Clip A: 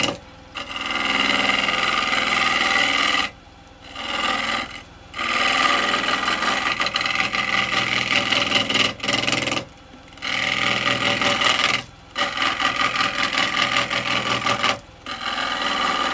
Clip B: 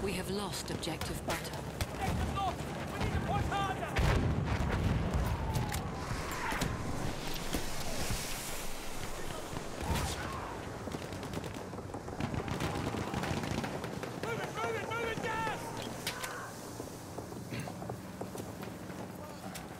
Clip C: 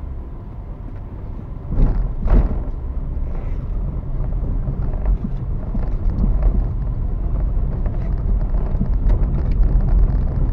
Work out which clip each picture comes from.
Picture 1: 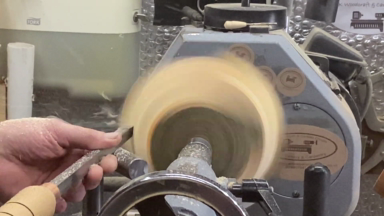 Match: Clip A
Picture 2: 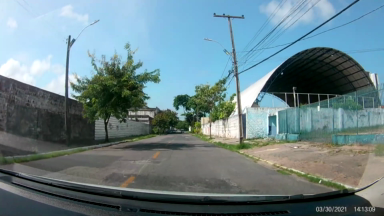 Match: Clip C